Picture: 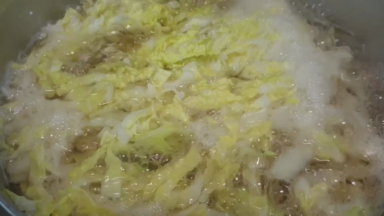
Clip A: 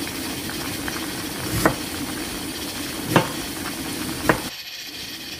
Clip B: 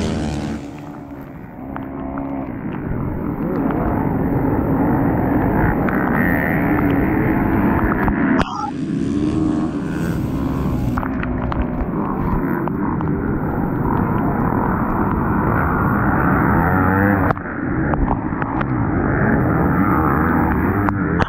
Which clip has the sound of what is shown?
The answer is A